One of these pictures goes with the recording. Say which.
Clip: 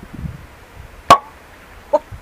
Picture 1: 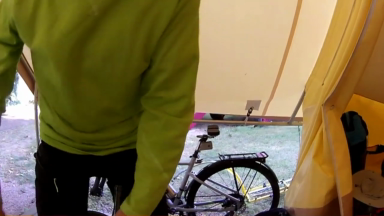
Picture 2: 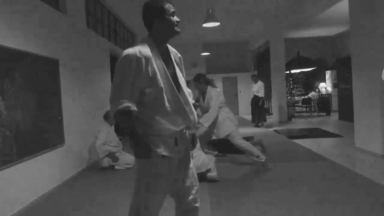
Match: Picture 1